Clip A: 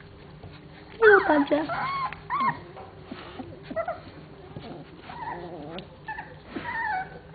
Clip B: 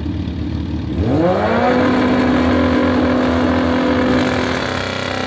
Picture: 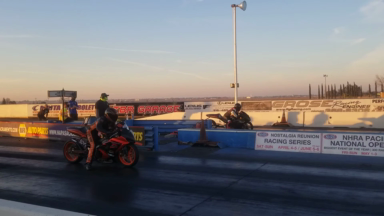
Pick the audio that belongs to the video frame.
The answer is B